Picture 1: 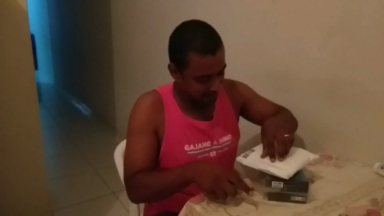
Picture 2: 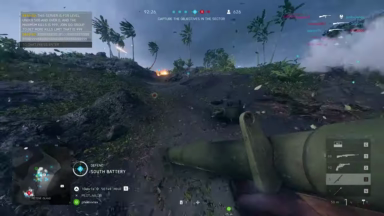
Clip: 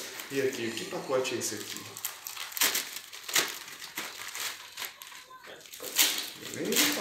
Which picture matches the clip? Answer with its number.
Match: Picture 1